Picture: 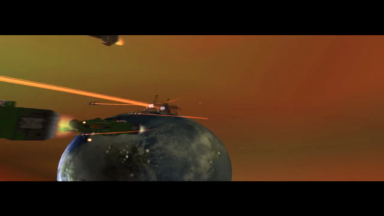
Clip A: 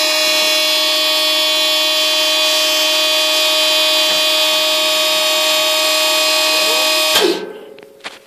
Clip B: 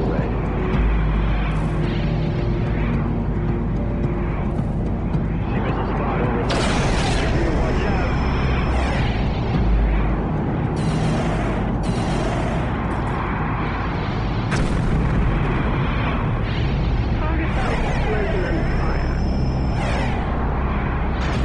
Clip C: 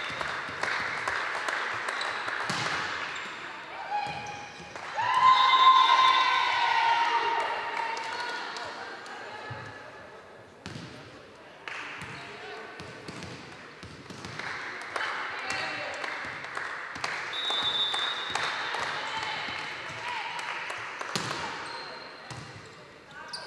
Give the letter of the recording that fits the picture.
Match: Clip B